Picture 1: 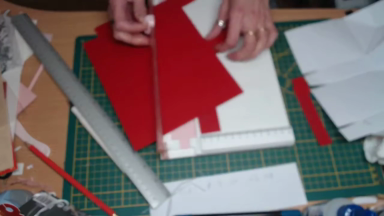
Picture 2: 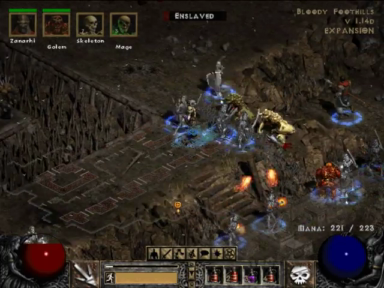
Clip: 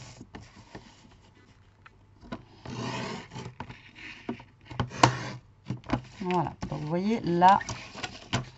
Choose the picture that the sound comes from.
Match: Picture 1